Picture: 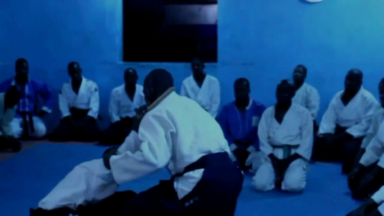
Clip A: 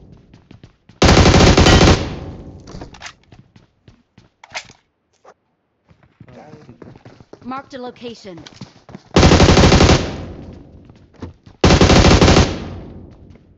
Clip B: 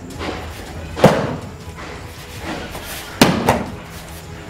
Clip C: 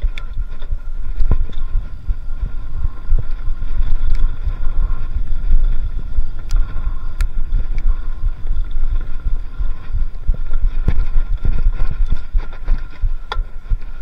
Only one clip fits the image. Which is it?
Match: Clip B